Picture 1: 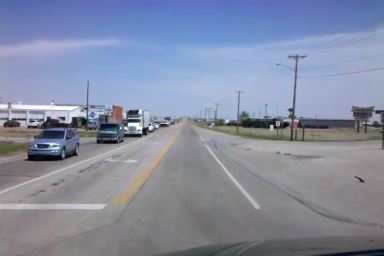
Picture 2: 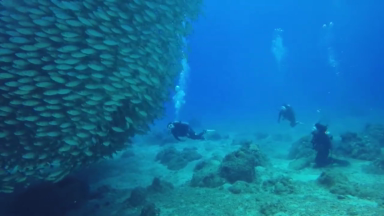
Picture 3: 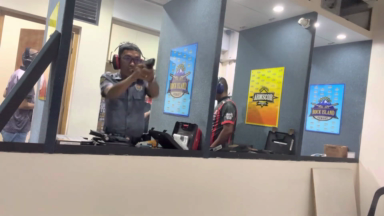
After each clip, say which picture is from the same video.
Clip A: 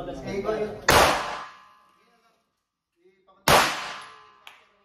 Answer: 3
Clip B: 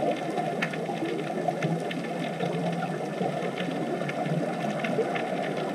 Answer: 2